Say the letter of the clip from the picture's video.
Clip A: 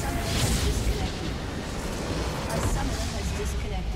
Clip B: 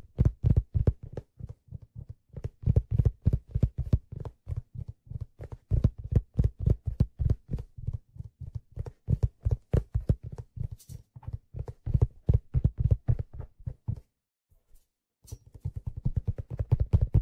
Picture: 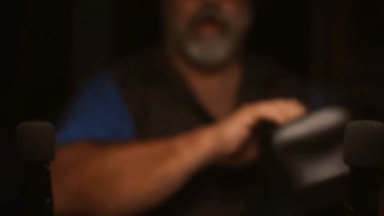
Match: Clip B